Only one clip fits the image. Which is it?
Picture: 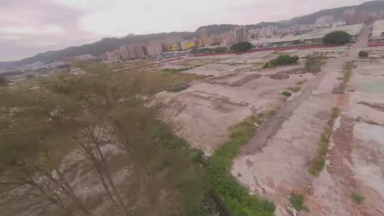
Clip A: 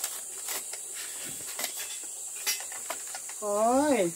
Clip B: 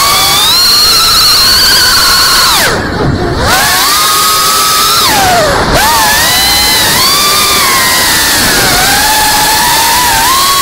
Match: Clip B